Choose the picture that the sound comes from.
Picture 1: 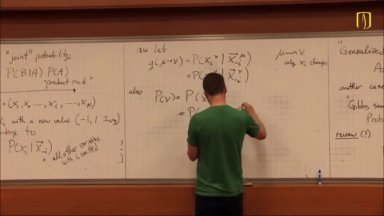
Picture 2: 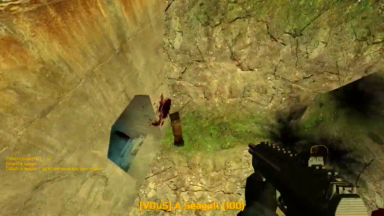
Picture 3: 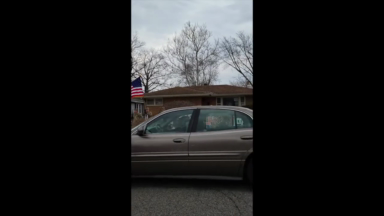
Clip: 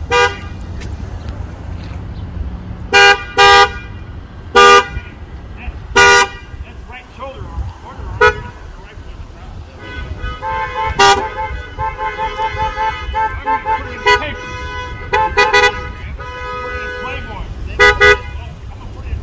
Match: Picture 3